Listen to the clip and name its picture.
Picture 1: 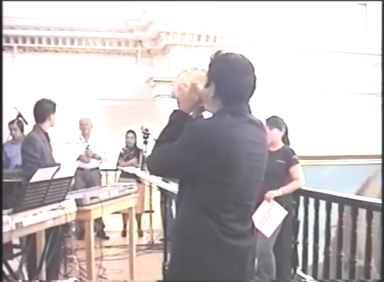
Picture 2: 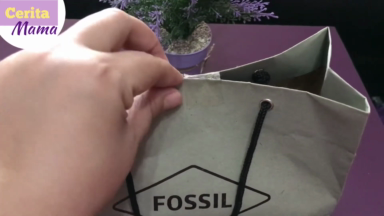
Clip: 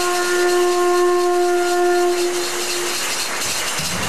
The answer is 1